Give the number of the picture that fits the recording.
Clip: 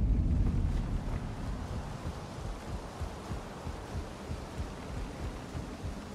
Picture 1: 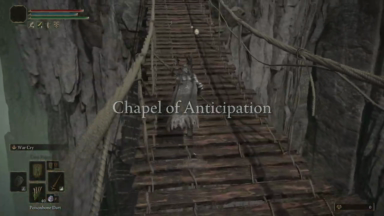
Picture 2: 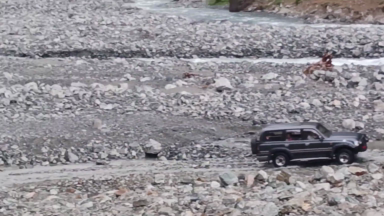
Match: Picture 1